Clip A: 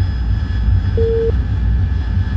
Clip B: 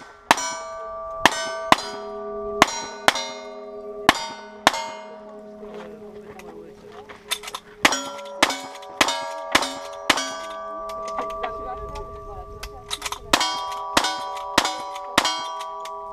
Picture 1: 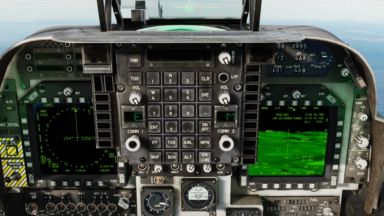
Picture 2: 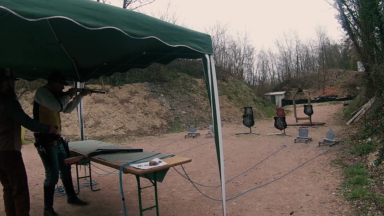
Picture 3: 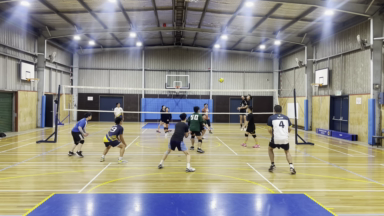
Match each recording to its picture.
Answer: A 1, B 2